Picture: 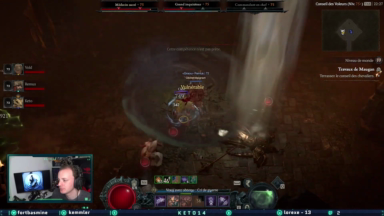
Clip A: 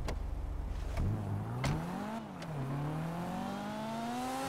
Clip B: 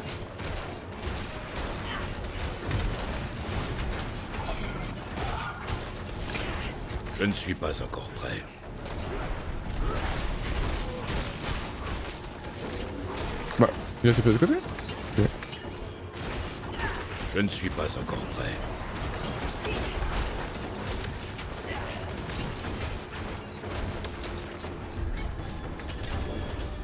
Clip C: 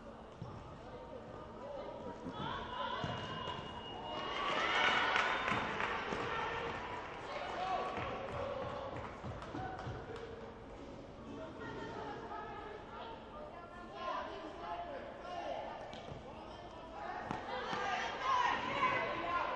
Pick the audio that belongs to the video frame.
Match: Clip B